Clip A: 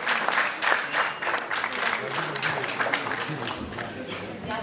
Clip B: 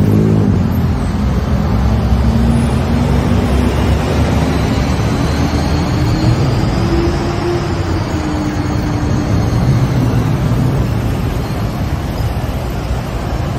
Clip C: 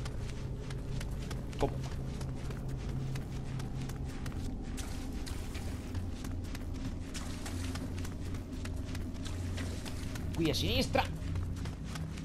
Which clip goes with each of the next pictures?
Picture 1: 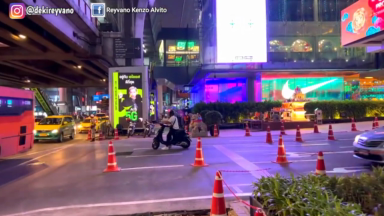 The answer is B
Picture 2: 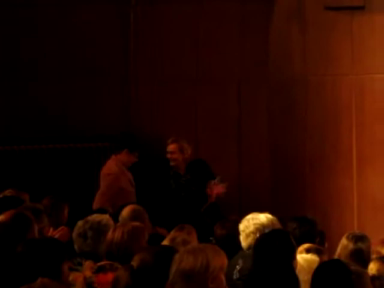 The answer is A